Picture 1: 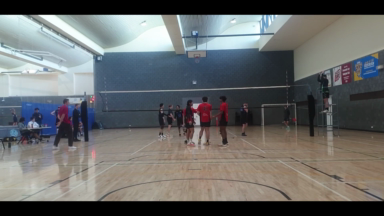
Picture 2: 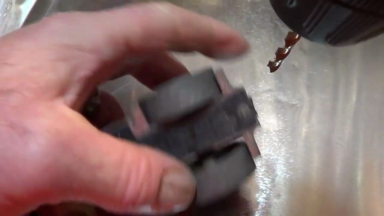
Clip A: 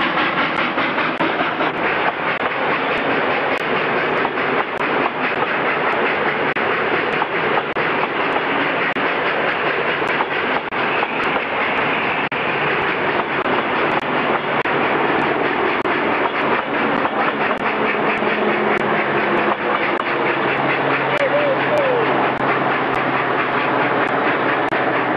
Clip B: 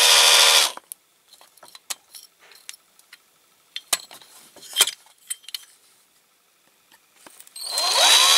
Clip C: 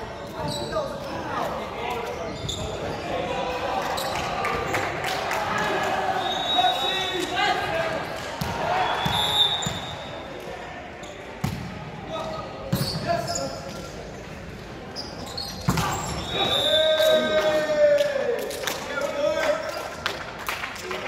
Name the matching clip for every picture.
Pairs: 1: C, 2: B